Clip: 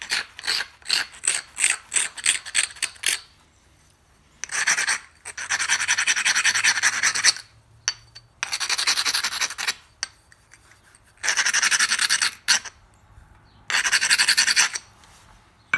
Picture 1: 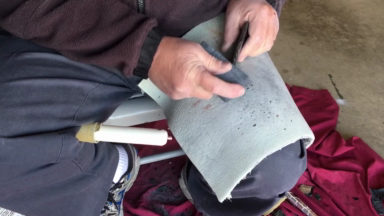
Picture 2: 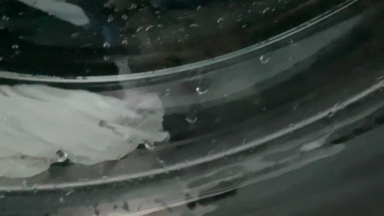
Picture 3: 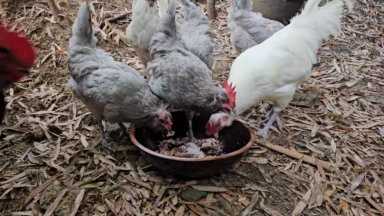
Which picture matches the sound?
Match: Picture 1